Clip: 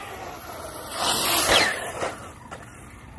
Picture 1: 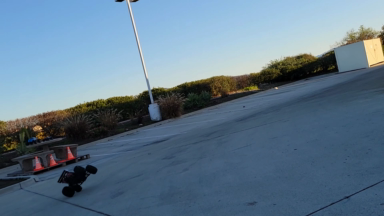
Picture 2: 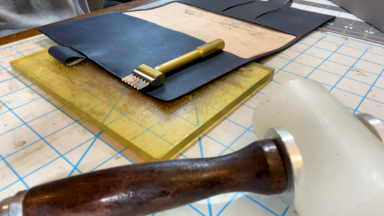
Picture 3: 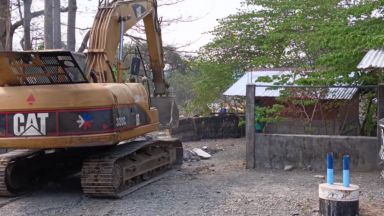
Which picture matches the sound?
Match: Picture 1